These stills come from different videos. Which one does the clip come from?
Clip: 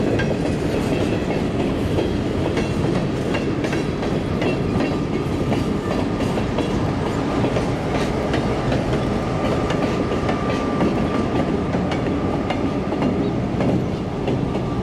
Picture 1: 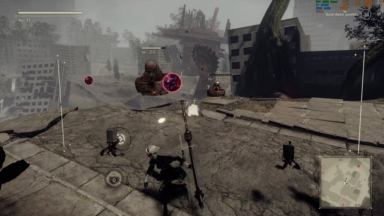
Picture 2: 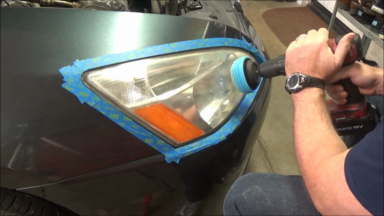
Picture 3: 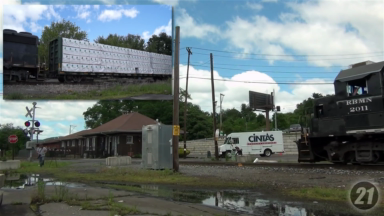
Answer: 3